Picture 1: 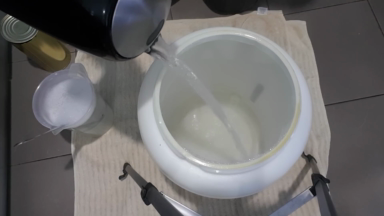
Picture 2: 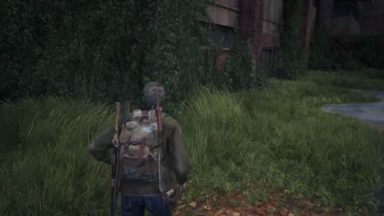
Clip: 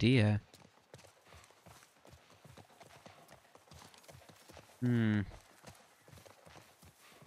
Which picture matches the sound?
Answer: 2